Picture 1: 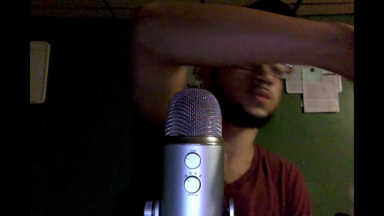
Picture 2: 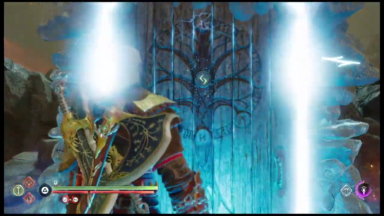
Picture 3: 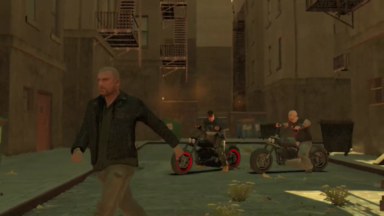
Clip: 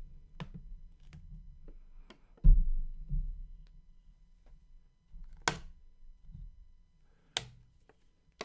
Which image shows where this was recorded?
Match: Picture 1